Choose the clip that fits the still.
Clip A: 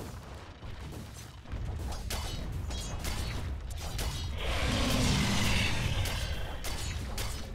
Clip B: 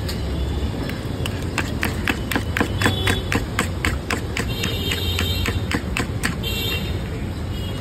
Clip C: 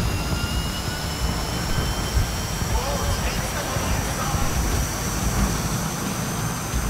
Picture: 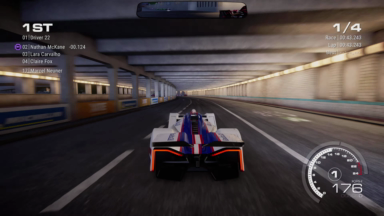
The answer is C